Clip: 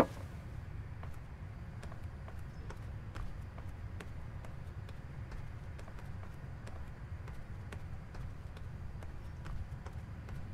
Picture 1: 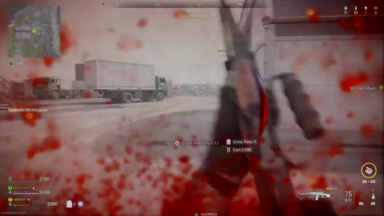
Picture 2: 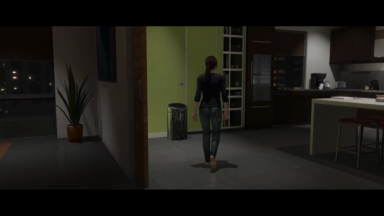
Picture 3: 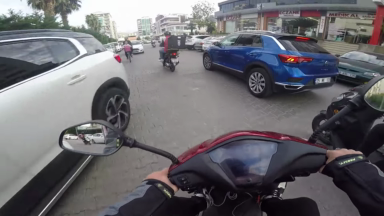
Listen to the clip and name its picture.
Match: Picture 2